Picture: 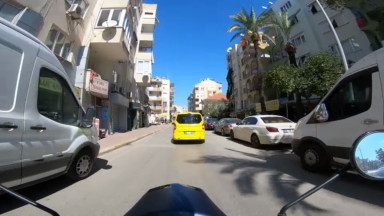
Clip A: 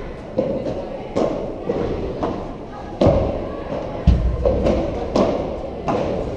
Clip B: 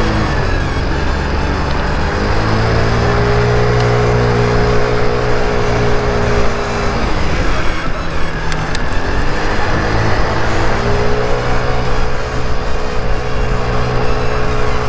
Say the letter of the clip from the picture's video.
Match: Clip B